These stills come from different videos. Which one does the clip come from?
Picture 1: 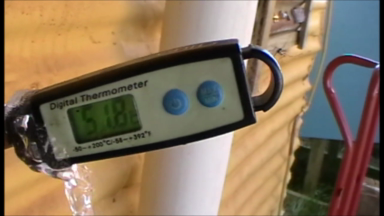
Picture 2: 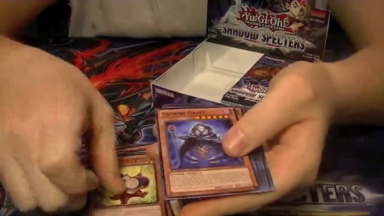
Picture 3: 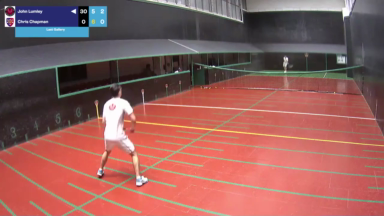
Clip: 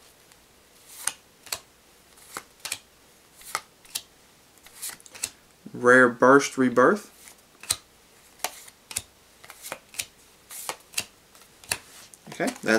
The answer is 2